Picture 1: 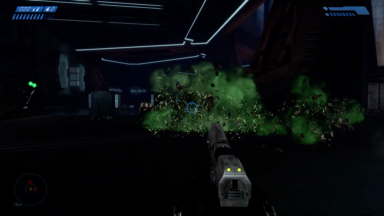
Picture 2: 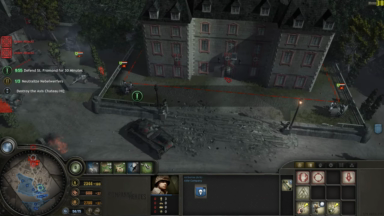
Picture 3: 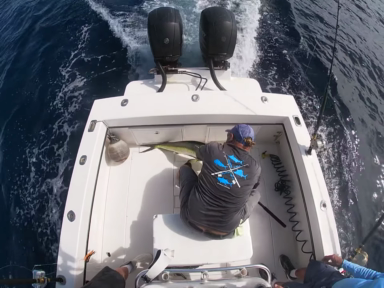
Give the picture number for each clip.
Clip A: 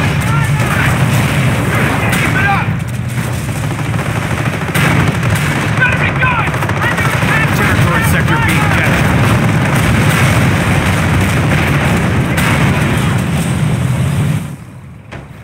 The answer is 2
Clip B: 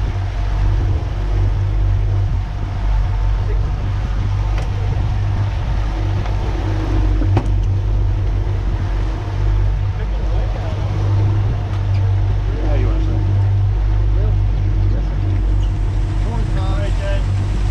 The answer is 3